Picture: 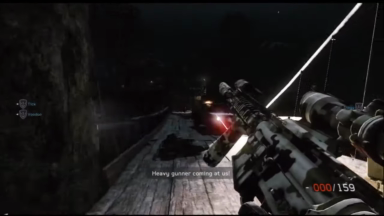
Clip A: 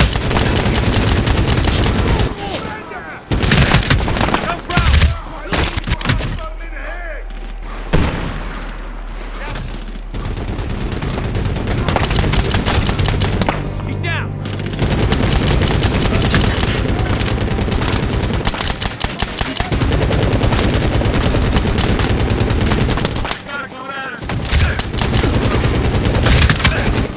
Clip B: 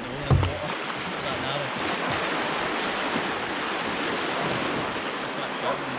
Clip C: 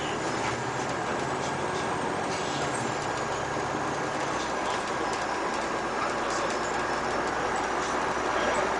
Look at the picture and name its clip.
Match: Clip A